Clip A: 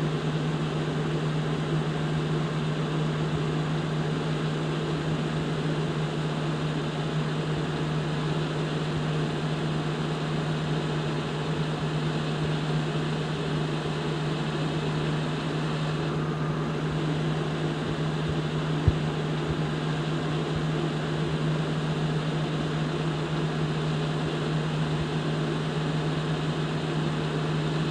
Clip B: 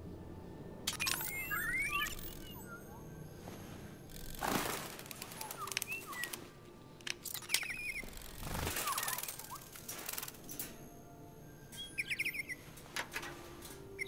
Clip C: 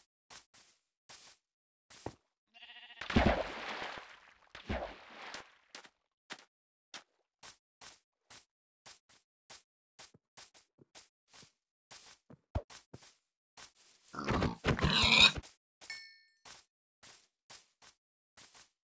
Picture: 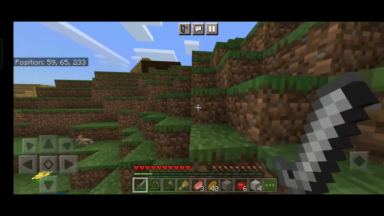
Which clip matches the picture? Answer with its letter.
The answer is C